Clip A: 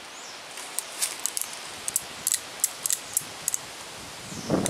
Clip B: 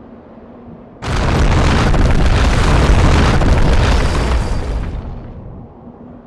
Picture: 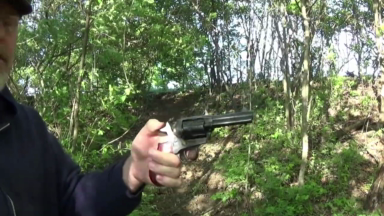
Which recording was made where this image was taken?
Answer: A